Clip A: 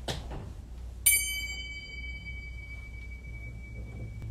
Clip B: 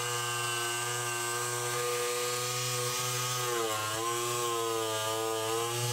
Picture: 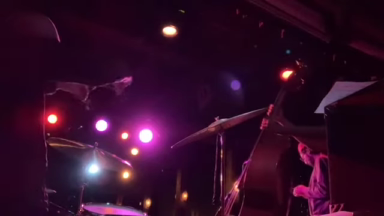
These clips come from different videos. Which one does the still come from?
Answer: A